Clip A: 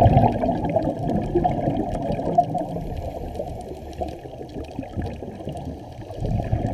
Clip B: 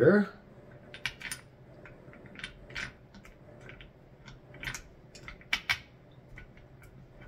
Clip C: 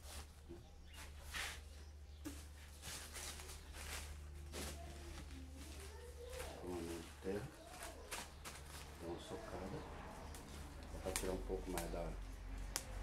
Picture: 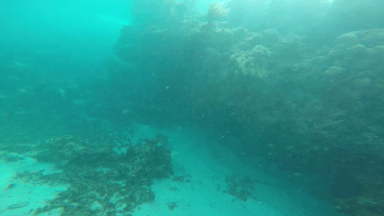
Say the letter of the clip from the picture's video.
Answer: A